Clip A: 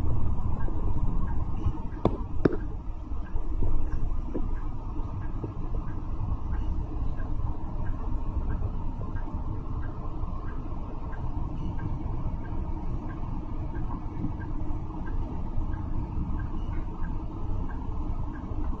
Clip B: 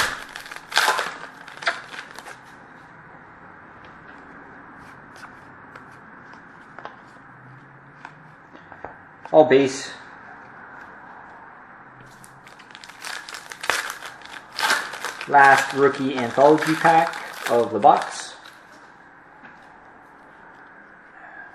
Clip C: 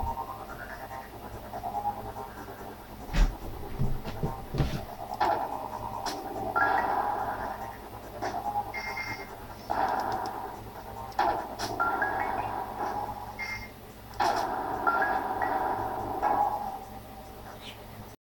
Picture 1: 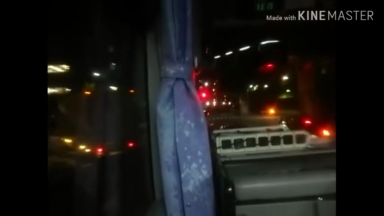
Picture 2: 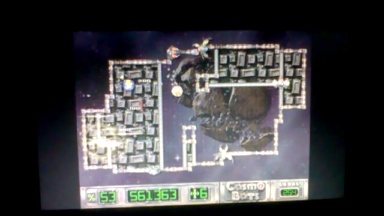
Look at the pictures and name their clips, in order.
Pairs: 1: A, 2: C